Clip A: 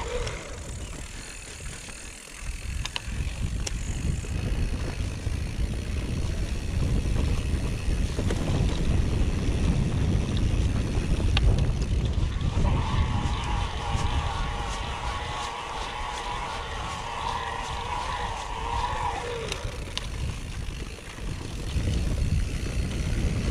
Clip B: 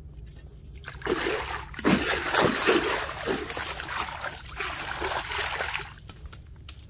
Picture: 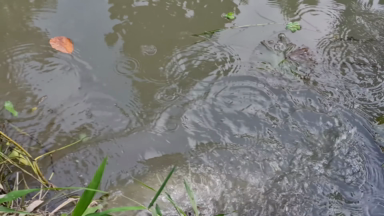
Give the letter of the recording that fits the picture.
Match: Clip B